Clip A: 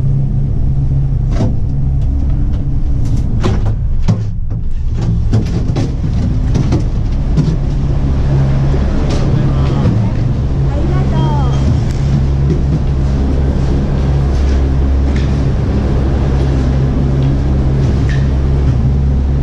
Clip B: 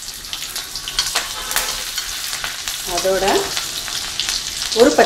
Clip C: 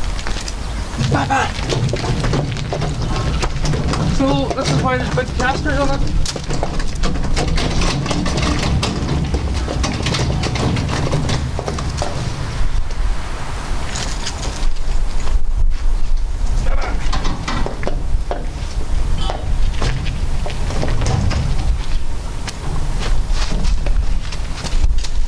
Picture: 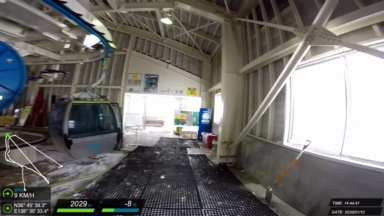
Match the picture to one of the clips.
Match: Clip A